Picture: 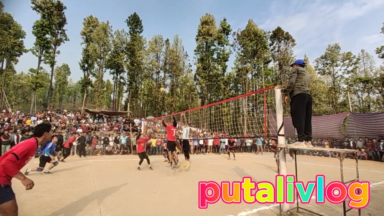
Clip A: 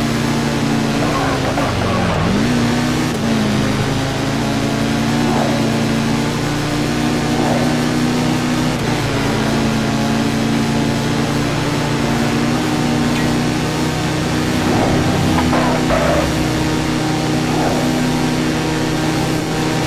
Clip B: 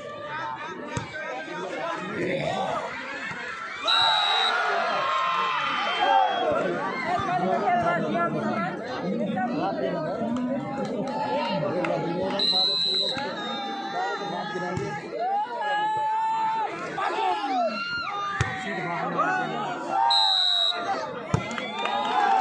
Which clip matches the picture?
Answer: B